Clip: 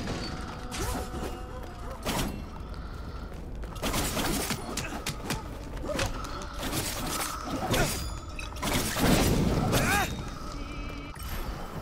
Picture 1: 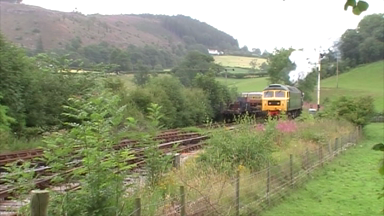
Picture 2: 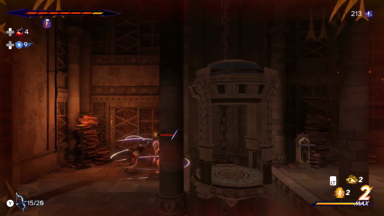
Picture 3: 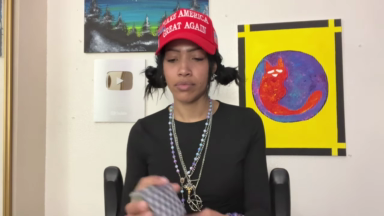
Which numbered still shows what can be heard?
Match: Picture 2